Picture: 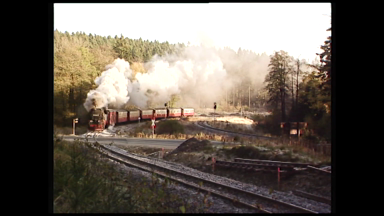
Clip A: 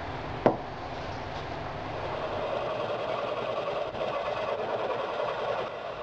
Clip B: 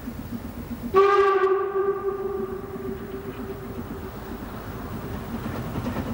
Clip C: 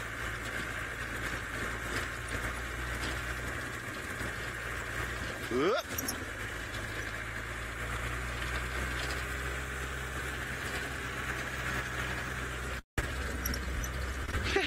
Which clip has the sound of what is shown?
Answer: B